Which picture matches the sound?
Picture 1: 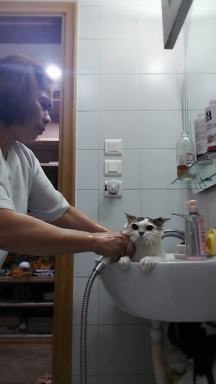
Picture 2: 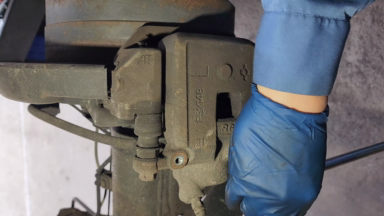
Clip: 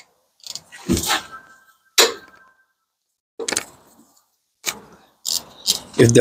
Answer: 2